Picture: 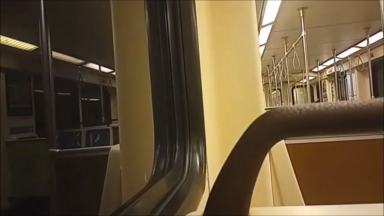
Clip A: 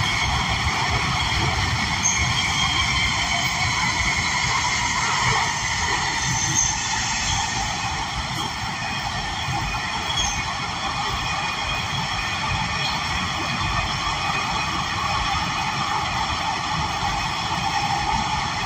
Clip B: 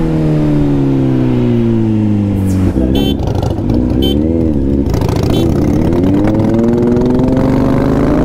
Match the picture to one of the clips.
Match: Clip A